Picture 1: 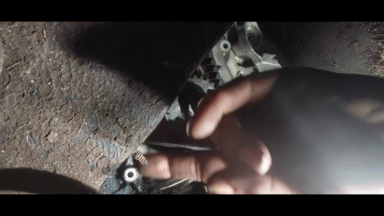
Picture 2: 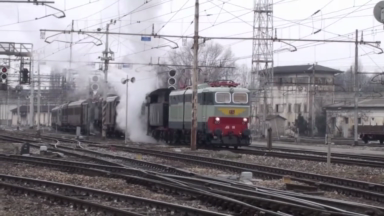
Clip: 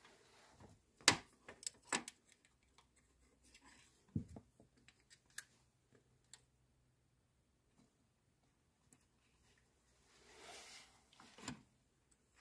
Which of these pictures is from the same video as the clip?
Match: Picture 1